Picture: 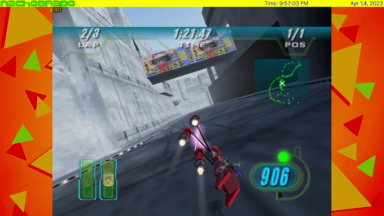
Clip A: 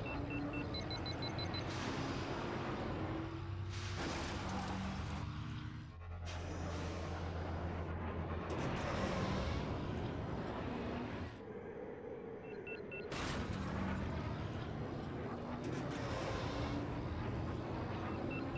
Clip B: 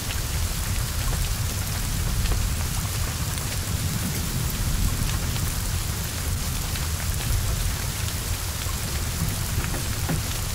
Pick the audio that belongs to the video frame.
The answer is A